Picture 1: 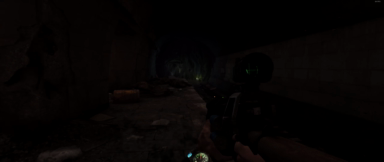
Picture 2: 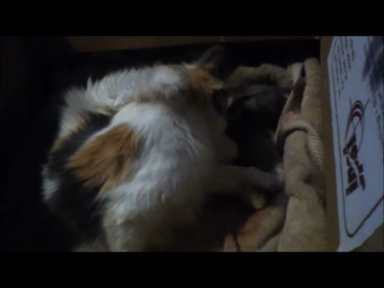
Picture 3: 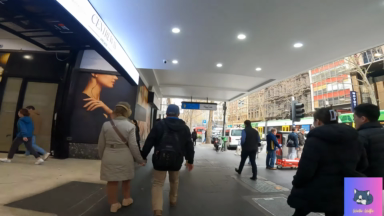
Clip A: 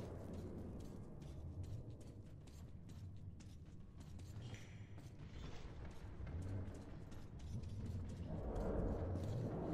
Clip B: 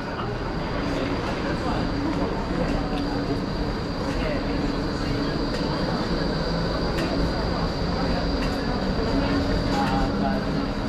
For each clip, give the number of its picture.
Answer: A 1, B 3